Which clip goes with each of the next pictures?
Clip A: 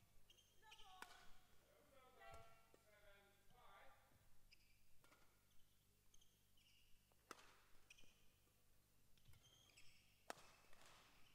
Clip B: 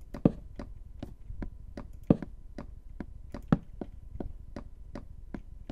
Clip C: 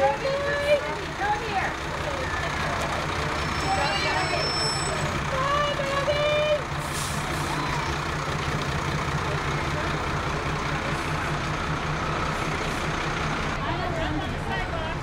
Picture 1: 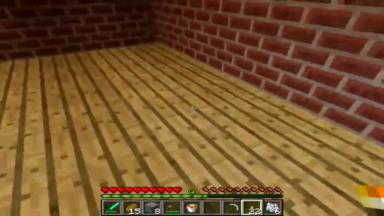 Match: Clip B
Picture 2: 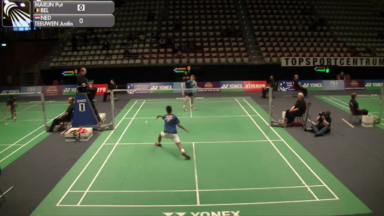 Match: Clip A